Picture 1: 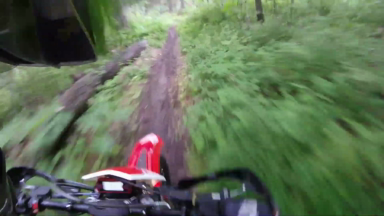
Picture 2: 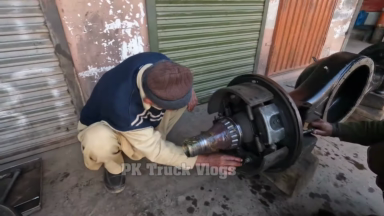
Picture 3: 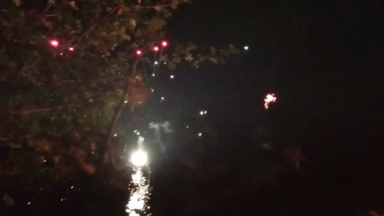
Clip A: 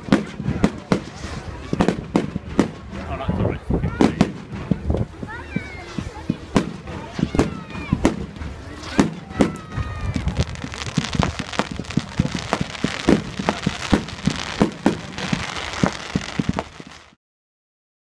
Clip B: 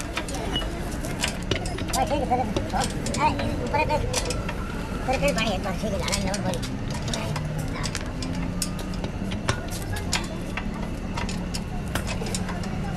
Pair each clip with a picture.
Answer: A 3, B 2